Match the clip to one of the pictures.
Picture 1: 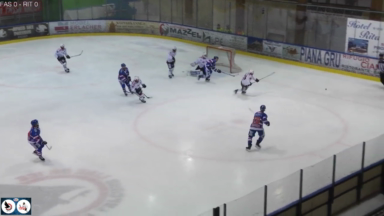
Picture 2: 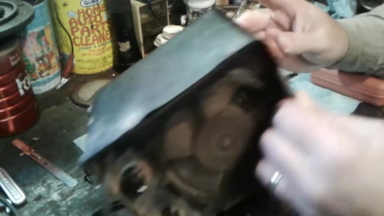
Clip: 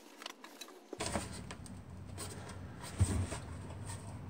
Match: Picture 2